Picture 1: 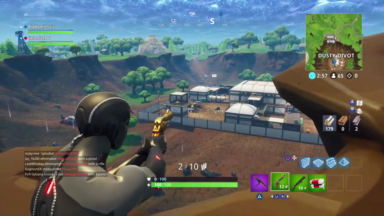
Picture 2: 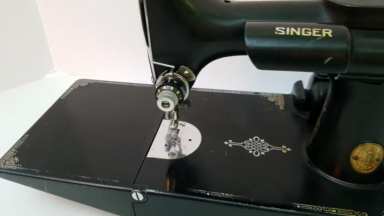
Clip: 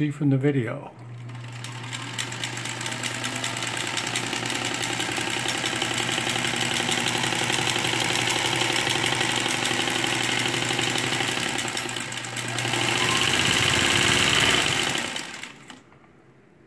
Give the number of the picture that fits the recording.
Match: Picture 2